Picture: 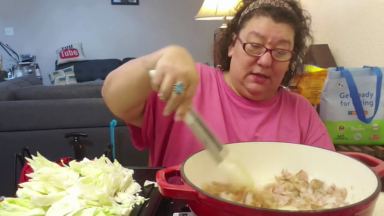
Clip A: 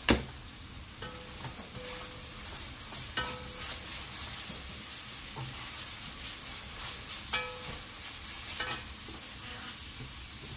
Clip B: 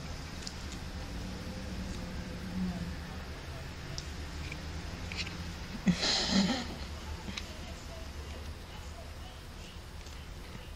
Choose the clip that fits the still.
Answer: A